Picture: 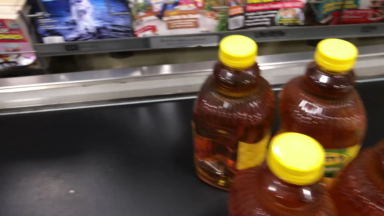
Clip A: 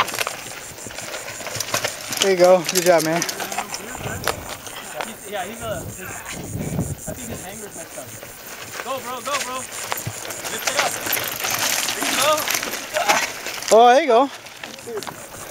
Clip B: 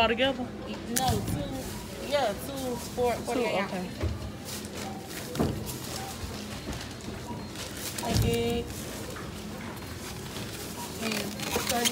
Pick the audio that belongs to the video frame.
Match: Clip B